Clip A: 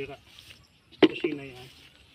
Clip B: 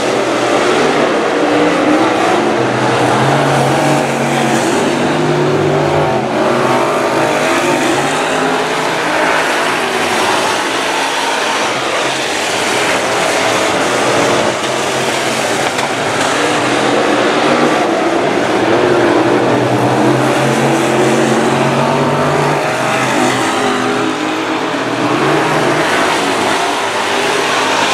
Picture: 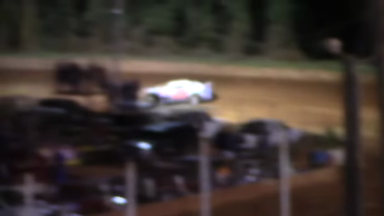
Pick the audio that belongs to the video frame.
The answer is B